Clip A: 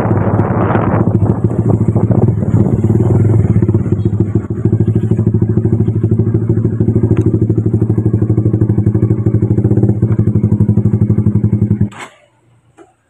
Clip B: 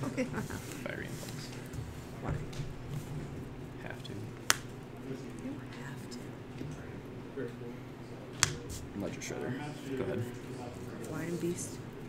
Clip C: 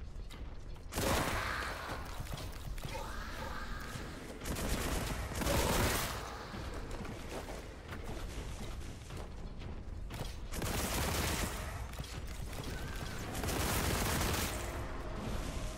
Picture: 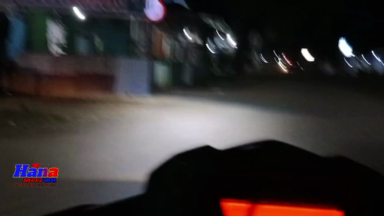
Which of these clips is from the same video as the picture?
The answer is A